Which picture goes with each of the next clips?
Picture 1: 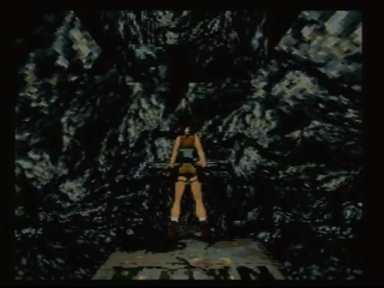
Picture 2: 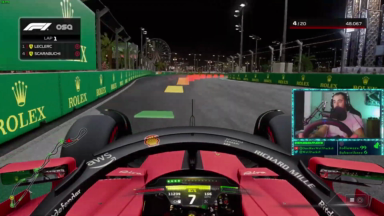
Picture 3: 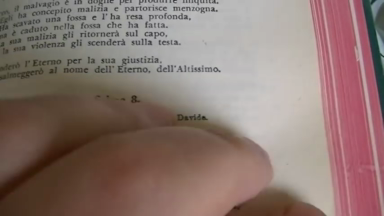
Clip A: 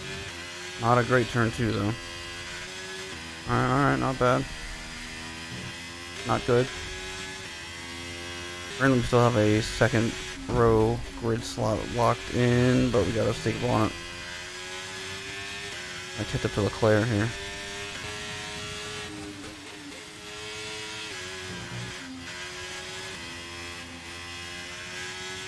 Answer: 2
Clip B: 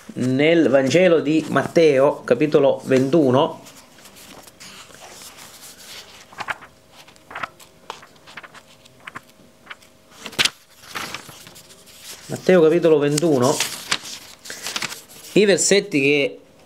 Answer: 3